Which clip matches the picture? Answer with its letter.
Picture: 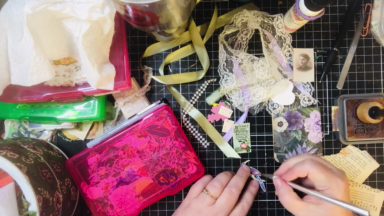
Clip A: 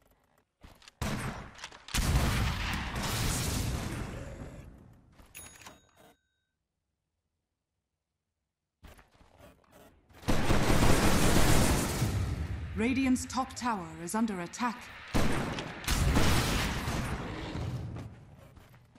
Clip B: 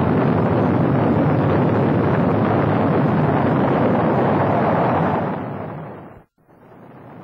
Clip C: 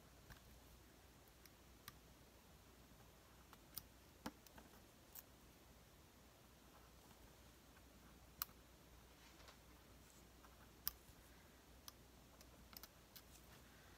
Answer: C